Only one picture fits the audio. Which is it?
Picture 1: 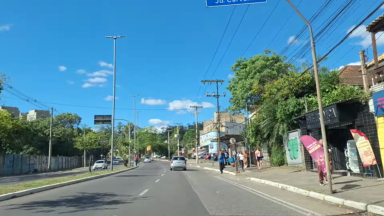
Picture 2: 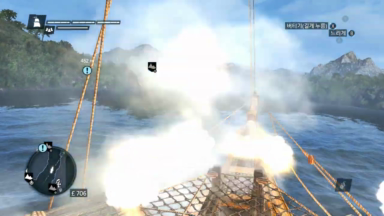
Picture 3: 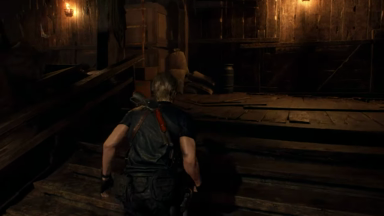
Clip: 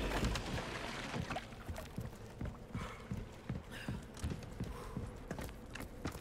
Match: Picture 3